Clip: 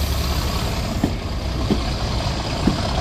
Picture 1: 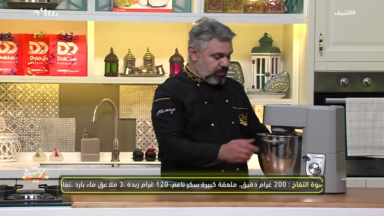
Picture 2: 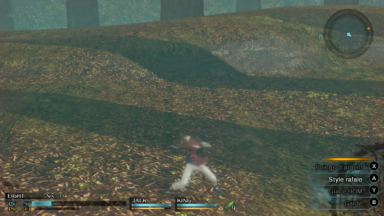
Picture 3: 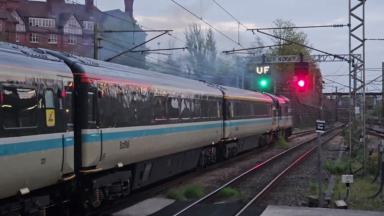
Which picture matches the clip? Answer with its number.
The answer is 3